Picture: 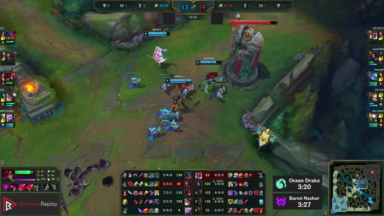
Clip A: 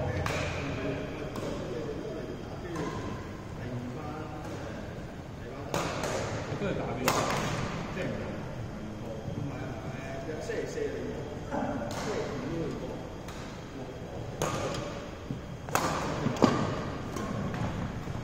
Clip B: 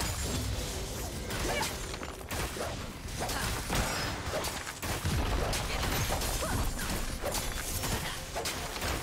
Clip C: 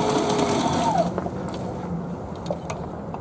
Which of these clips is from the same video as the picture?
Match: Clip B